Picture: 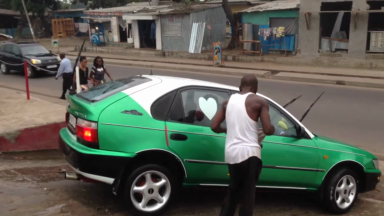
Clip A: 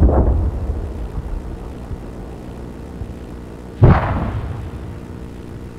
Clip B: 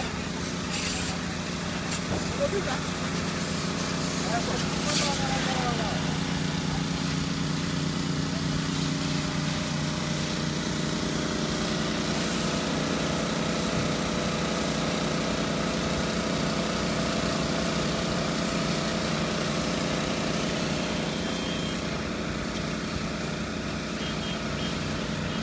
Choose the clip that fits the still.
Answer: B